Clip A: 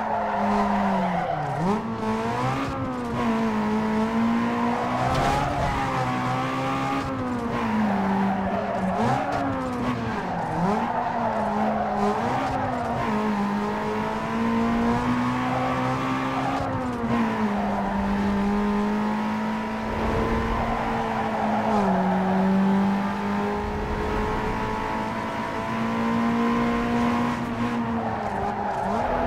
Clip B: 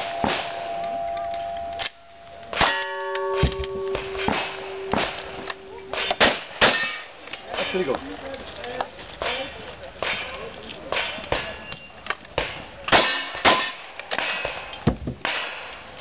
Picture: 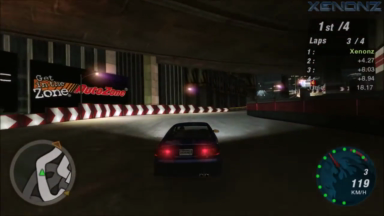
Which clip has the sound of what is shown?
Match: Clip A